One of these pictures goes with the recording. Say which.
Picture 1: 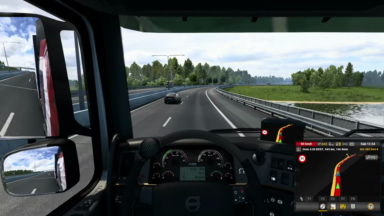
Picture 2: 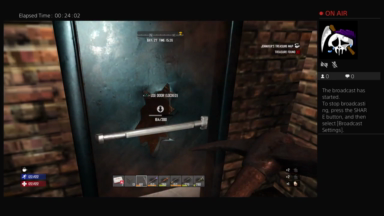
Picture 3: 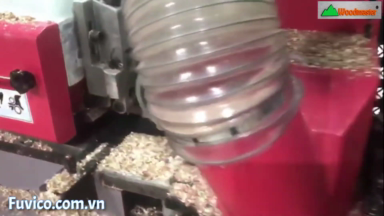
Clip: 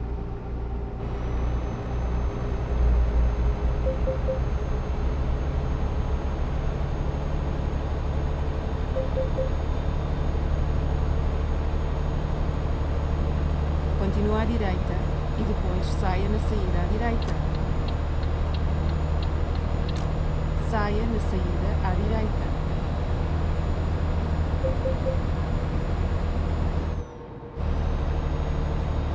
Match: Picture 1